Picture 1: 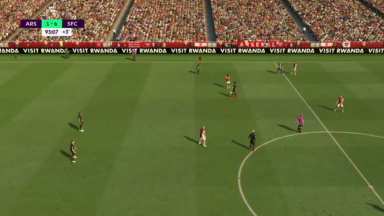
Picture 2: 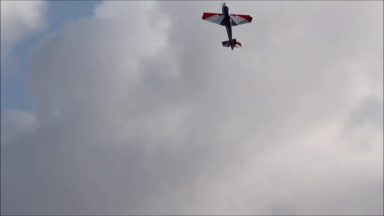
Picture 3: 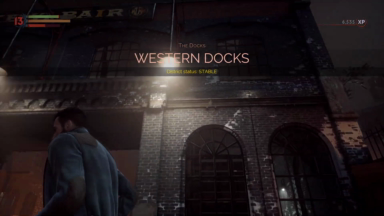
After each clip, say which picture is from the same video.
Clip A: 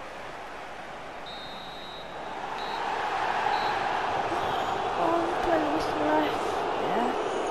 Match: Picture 1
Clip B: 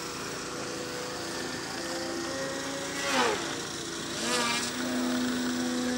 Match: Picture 2